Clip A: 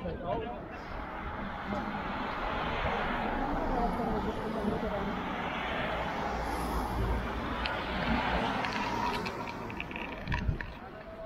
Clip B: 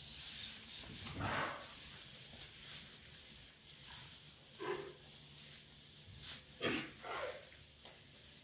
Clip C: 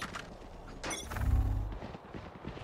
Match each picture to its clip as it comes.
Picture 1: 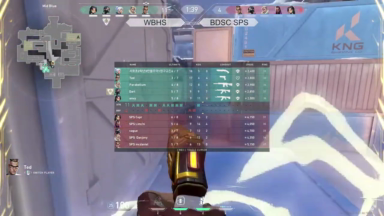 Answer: C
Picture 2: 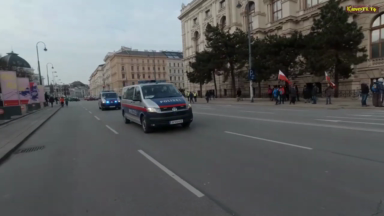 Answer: A